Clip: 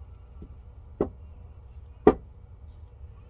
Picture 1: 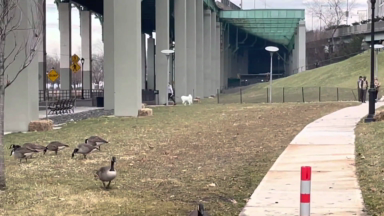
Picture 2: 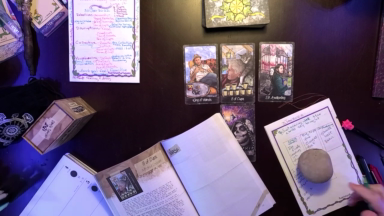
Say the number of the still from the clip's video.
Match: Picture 2